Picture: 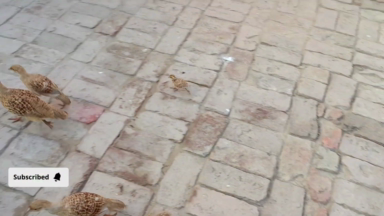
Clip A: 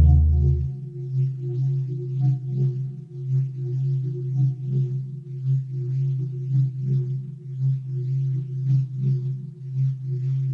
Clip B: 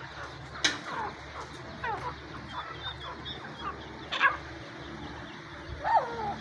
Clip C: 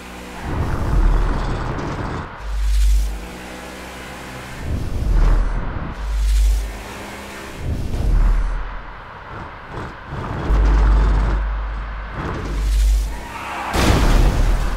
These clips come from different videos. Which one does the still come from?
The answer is B